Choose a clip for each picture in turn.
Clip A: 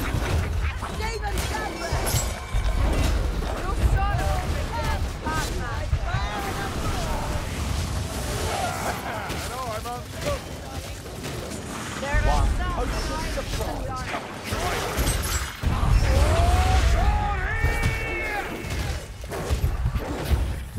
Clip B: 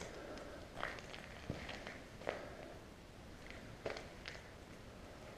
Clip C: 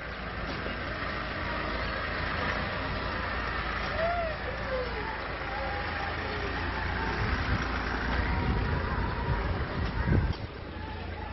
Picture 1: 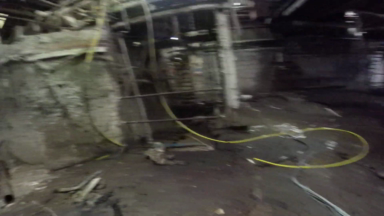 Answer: B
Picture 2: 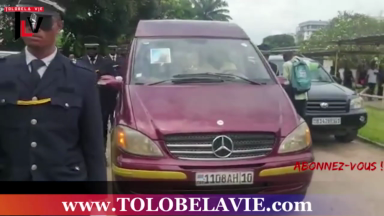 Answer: C